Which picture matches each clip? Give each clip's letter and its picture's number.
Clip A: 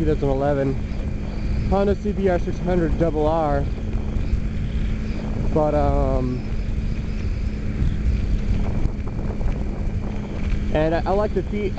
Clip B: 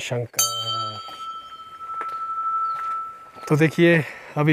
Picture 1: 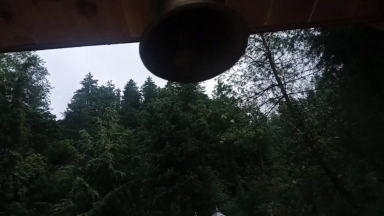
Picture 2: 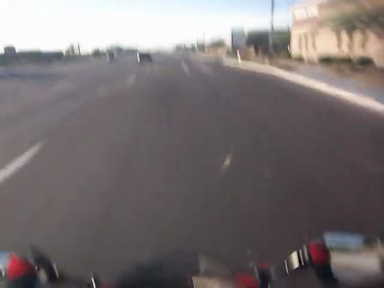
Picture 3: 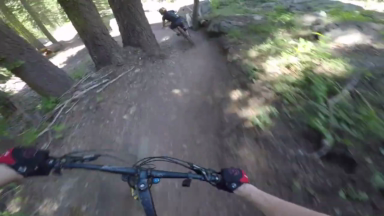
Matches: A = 2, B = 1